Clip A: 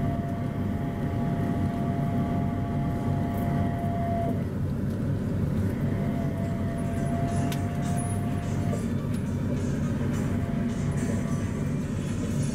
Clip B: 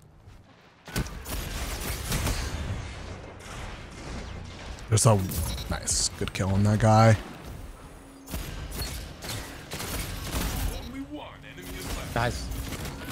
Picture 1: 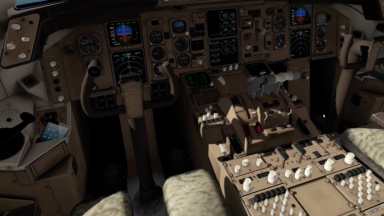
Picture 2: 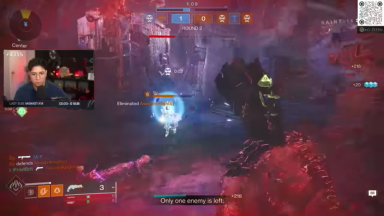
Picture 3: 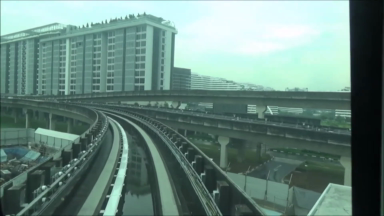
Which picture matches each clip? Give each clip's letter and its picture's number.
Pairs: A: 3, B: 2